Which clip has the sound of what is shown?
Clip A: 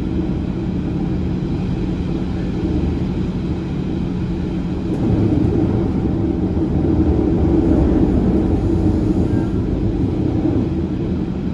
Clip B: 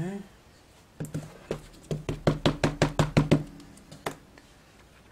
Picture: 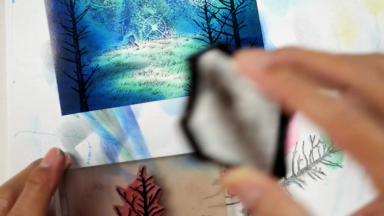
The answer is B